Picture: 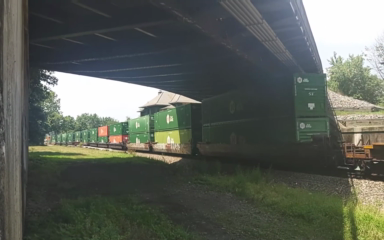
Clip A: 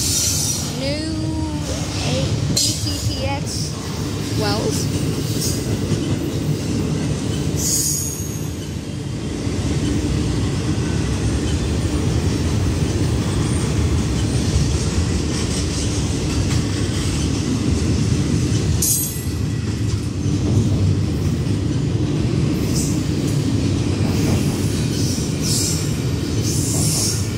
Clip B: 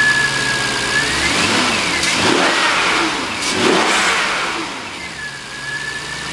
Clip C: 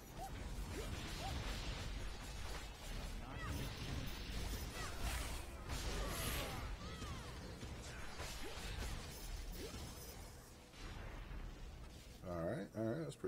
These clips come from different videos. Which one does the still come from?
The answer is A